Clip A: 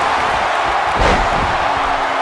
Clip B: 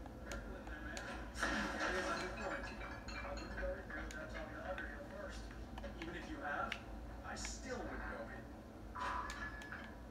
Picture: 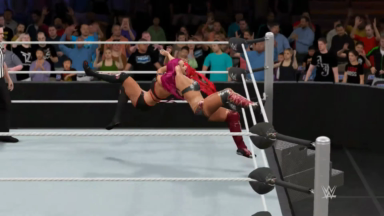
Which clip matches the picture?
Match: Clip A